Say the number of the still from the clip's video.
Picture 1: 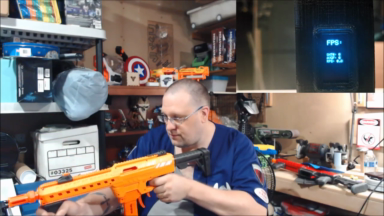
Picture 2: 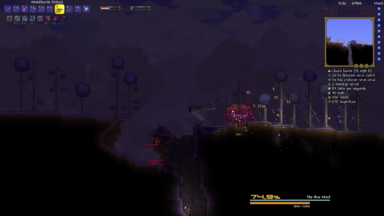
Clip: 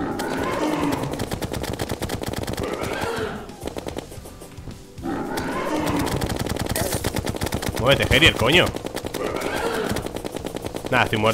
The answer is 2